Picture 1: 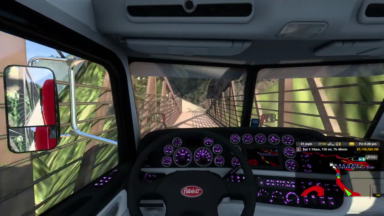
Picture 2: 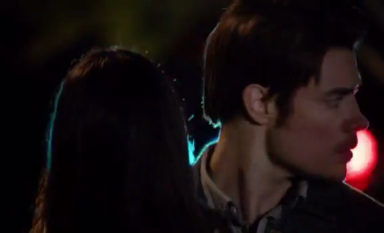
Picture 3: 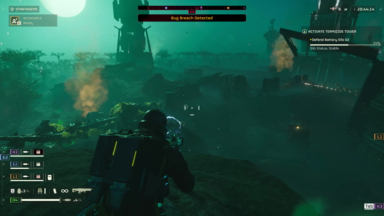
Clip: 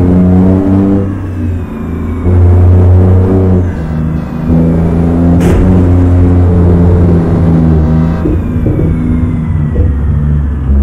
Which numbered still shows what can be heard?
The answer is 1